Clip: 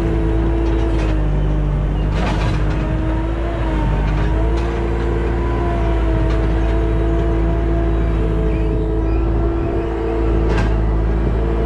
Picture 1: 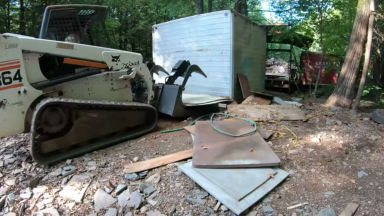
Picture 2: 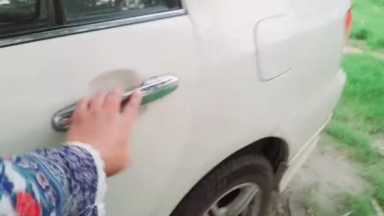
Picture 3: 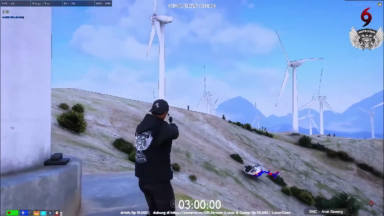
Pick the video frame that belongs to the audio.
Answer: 1